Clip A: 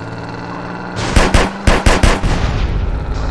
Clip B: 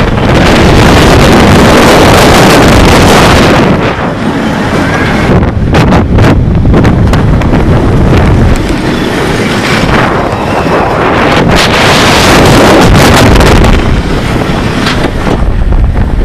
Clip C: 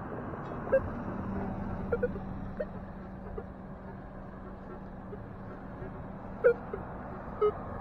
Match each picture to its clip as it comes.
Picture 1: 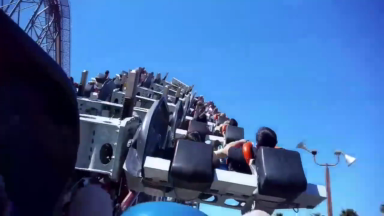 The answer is B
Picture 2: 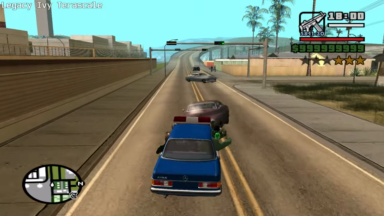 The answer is A